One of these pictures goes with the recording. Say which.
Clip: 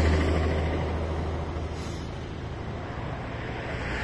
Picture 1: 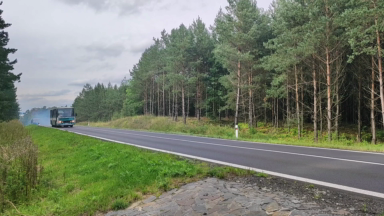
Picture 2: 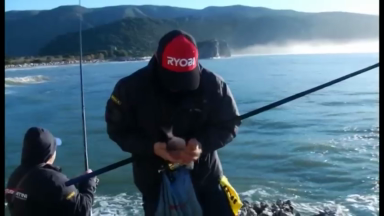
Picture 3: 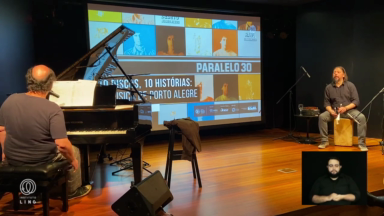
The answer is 1